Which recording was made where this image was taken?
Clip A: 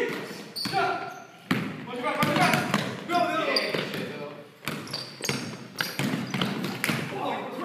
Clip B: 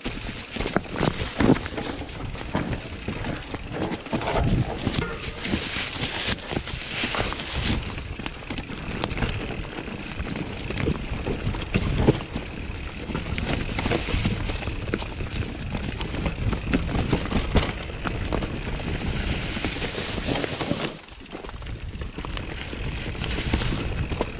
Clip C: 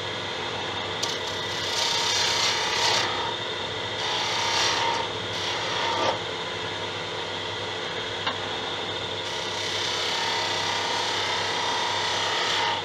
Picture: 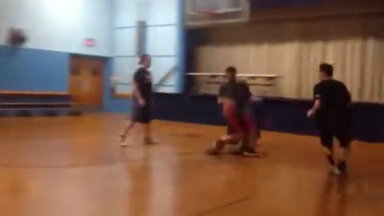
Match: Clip A